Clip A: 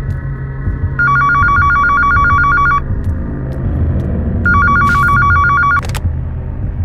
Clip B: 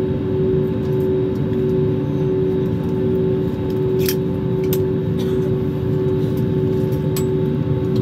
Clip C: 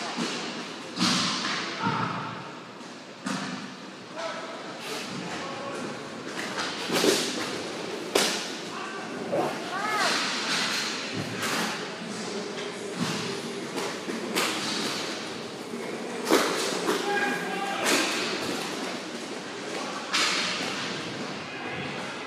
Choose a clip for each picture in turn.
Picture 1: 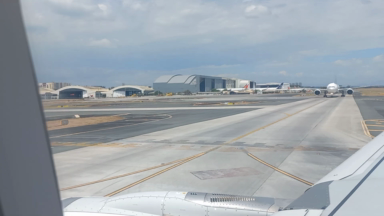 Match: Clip B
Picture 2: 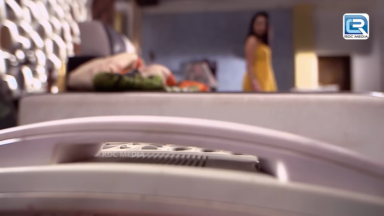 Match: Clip A